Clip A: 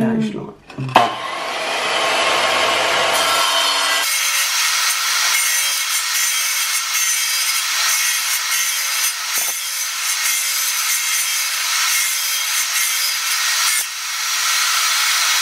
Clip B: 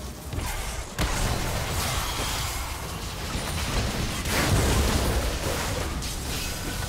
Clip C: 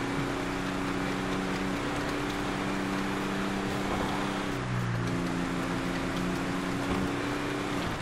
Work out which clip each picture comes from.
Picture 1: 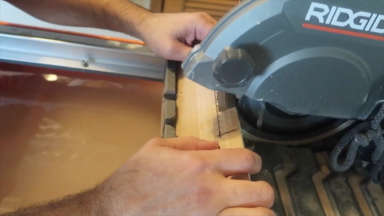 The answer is A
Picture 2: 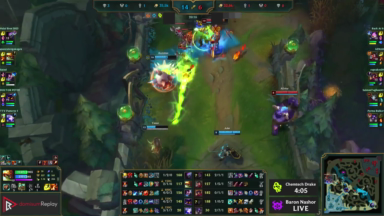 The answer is B